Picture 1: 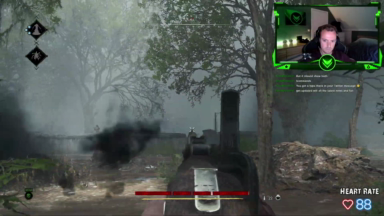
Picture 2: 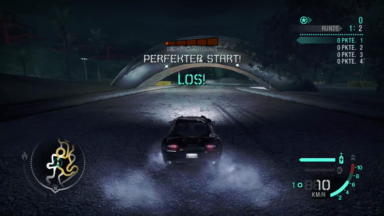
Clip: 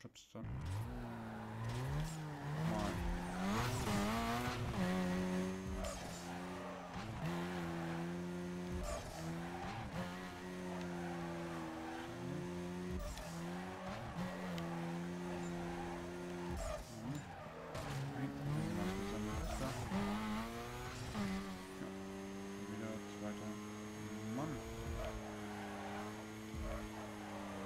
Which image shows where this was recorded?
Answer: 2